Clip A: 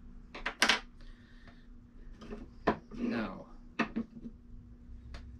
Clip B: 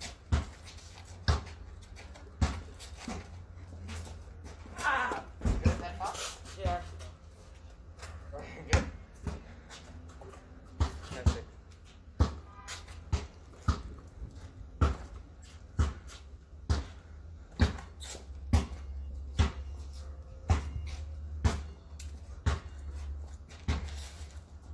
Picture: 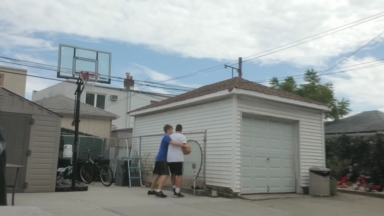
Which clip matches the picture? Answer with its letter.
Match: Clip B